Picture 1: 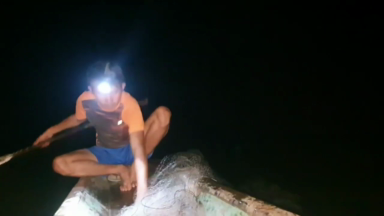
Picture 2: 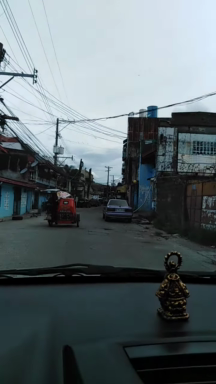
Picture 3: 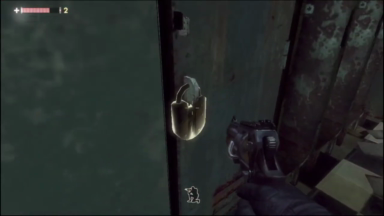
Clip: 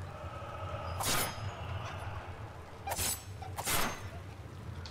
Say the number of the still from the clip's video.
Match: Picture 3